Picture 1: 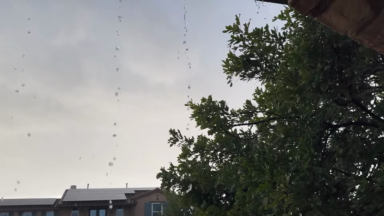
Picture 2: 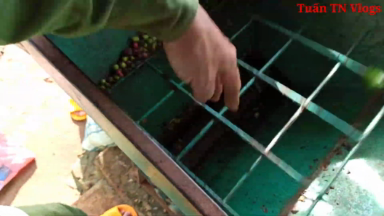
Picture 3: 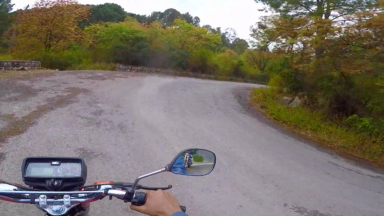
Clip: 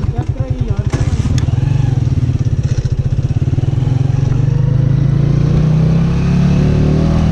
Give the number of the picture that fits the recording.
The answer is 3